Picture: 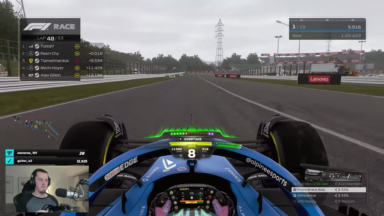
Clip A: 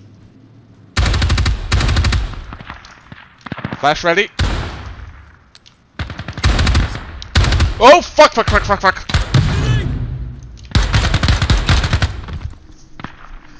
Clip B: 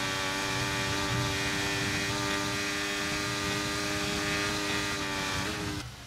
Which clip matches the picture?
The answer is B